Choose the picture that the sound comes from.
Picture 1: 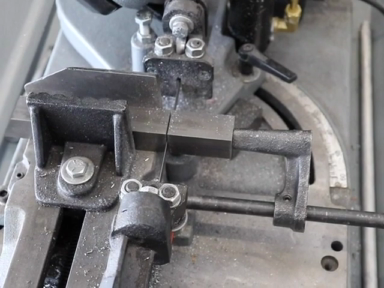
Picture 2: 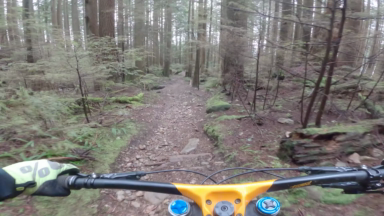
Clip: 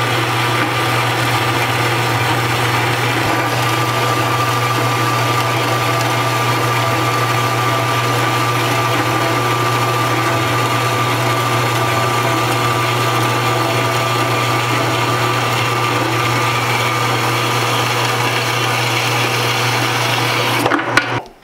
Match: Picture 1